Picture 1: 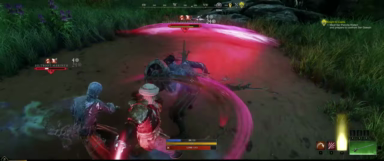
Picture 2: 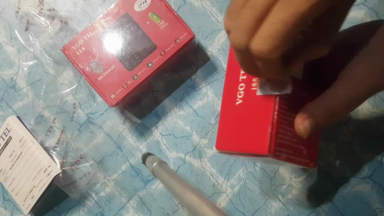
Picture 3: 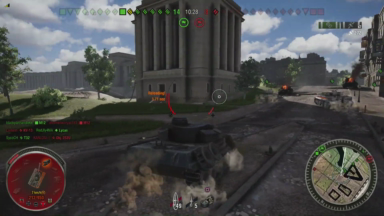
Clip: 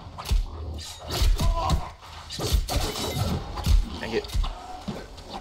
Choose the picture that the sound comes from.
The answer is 1